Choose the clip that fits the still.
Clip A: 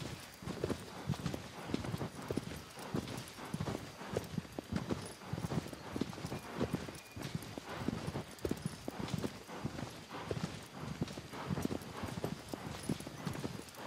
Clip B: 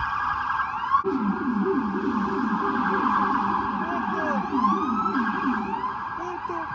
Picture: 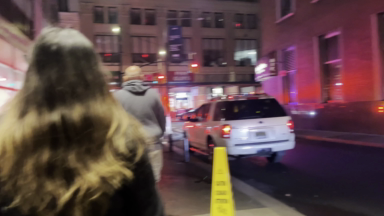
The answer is B